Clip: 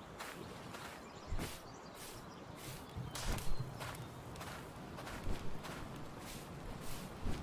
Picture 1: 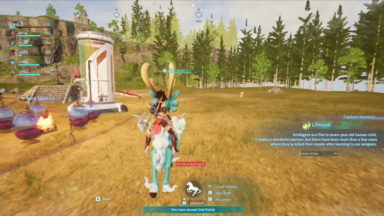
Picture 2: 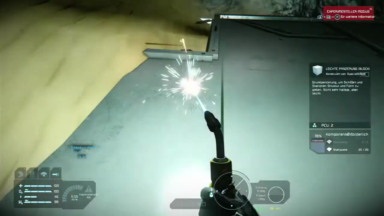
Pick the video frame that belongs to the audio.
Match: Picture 1